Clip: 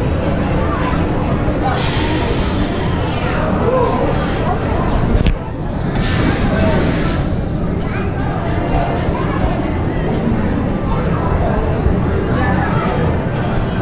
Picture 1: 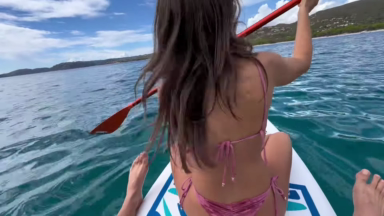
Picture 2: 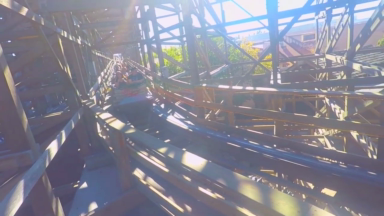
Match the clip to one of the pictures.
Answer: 2